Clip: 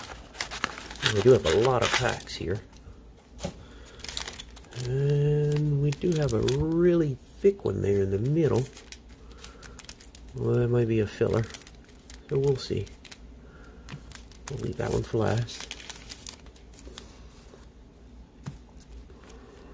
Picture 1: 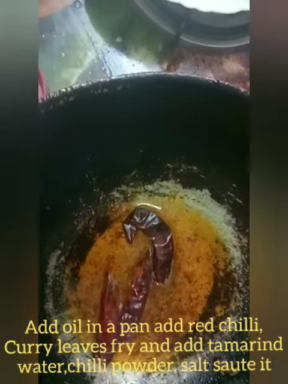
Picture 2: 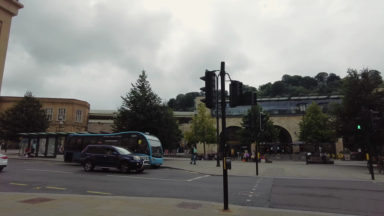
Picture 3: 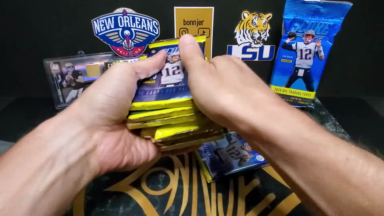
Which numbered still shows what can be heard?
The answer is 3